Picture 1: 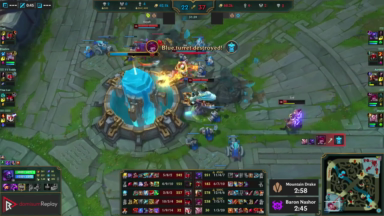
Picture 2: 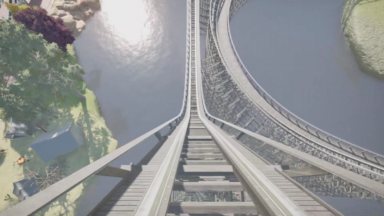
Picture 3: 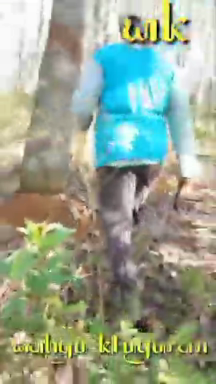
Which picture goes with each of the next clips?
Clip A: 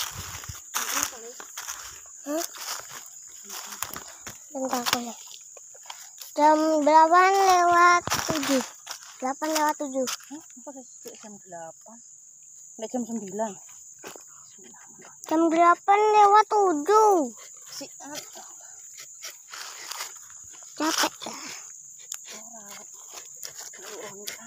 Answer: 3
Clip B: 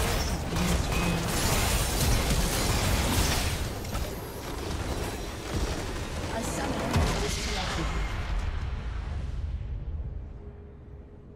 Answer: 1